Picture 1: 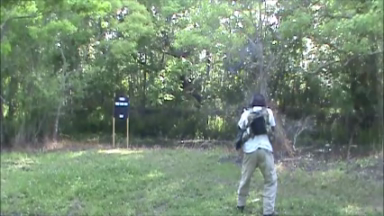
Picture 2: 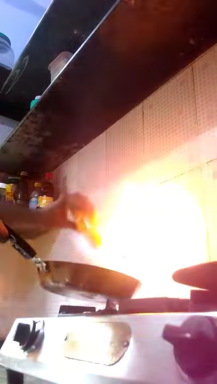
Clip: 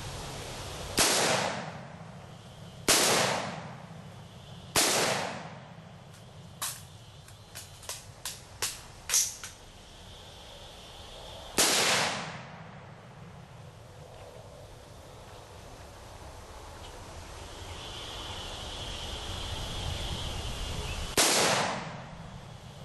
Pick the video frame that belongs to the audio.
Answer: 1